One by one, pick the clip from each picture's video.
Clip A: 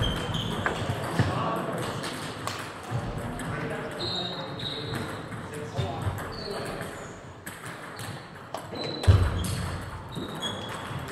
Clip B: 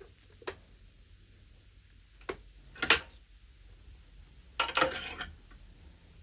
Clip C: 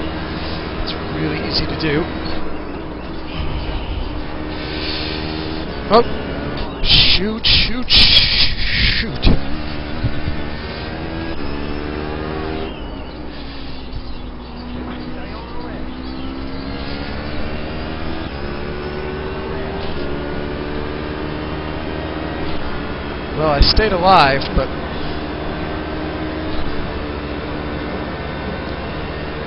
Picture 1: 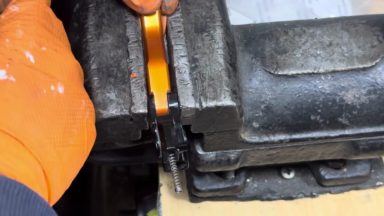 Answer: B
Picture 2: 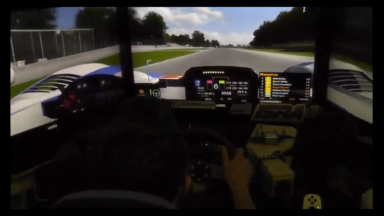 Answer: C